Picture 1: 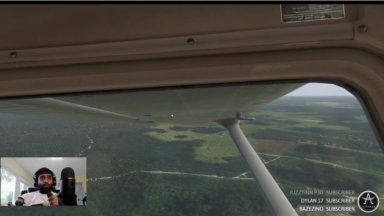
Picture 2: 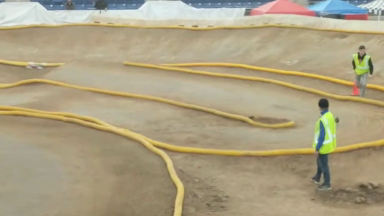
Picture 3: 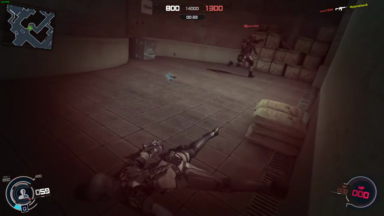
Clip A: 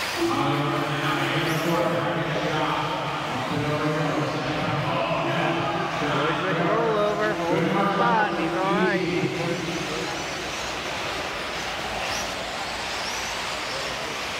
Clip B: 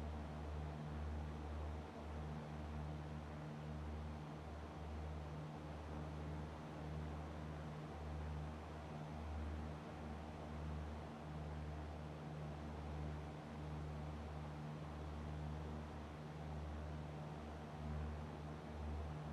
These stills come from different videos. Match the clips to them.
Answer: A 2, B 1